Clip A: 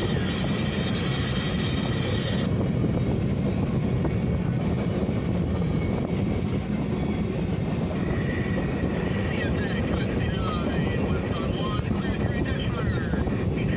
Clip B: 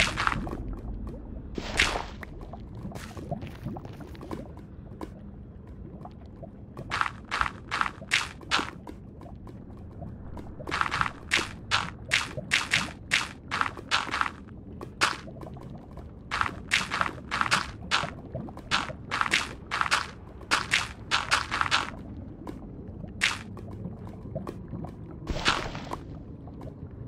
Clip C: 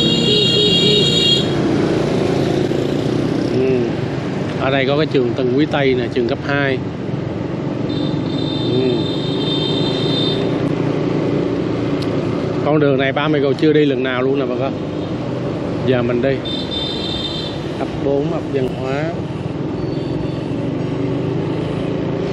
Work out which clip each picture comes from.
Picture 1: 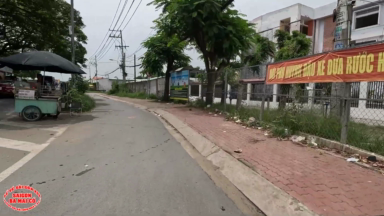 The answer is C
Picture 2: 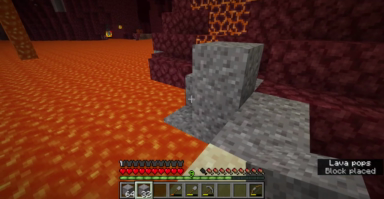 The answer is B